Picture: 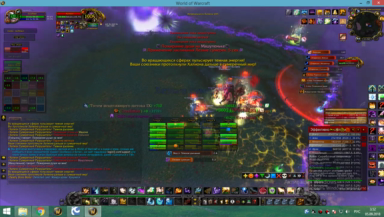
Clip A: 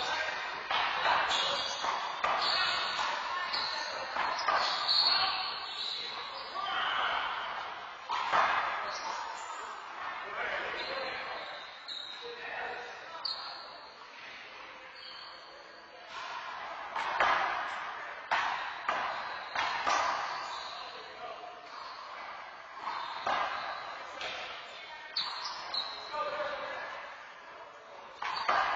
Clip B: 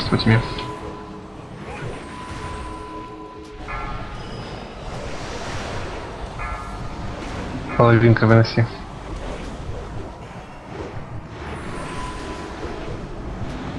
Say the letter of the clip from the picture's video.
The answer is B